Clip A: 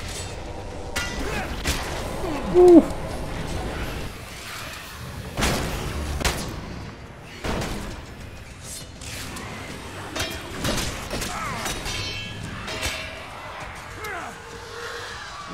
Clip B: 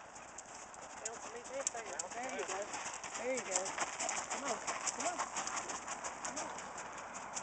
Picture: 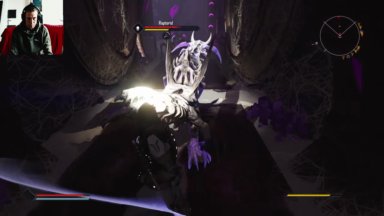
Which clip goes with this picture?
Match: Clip A